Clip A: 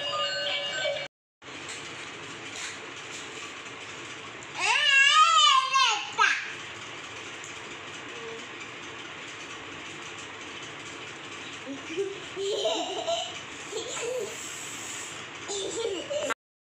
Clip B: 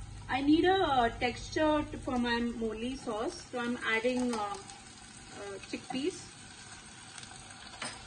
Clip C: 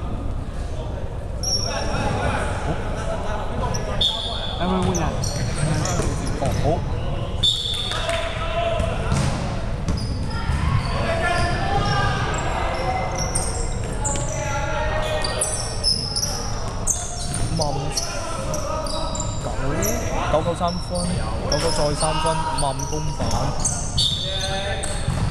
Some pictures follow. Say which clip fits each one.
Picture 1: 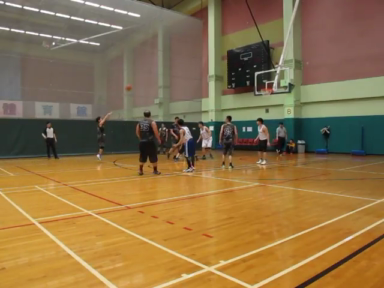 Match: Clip C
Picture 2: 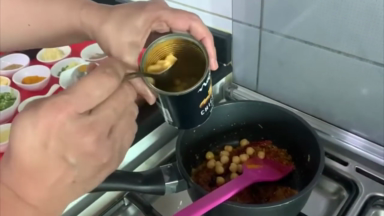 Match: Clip B